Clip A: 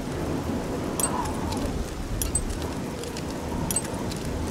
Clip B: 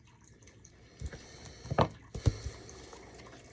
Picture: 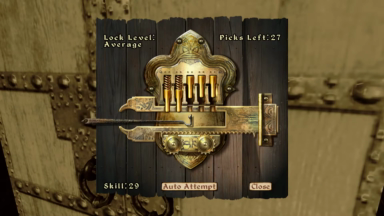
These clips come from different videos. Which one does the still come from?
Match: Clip A